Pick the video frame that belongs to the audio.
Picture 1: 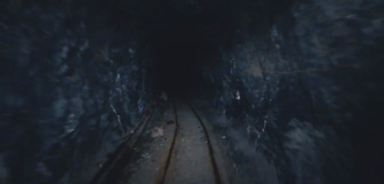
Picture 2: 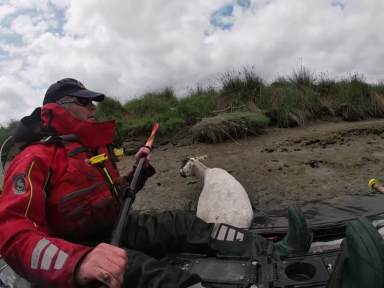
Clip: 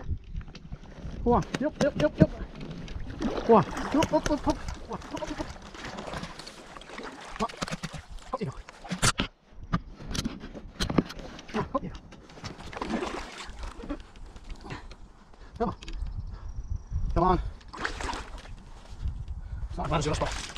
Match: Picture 2